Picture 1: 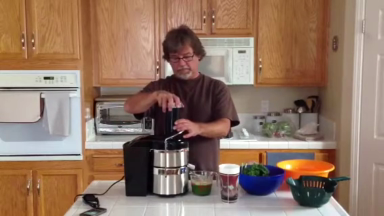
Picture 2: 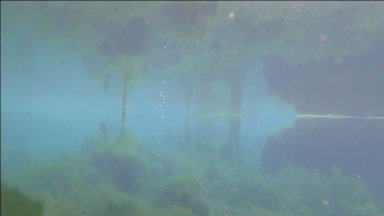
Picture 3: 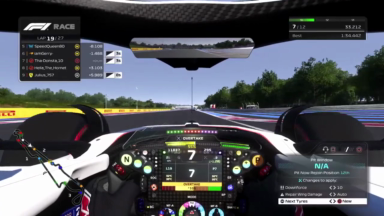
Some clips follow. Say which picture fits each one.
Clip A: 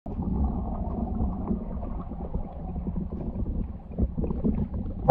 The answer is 2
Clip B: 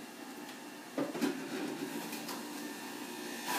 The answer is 1